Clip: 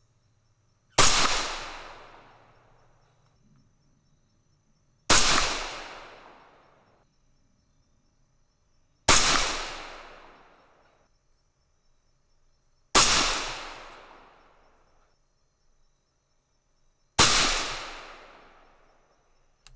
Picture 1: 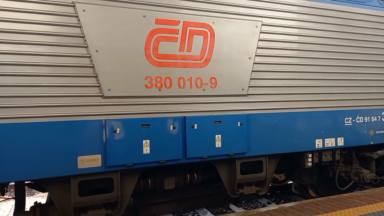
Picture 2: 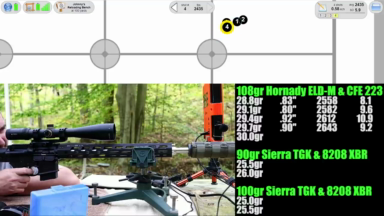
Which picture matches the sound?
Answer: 2